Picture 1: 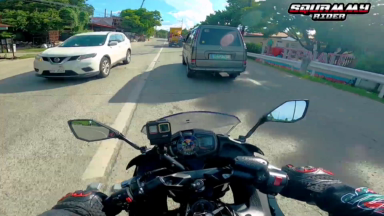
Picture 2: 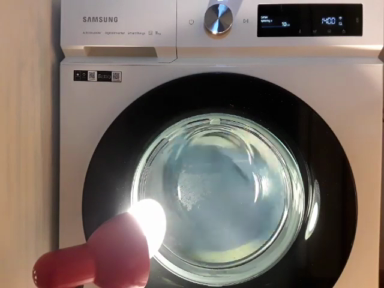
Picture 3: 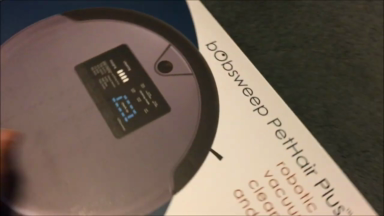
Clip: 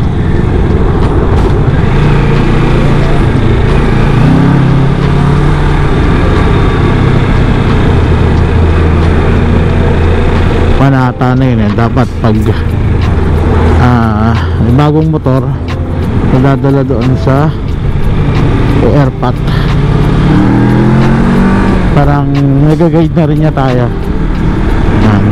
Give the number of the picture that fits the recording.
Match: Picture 1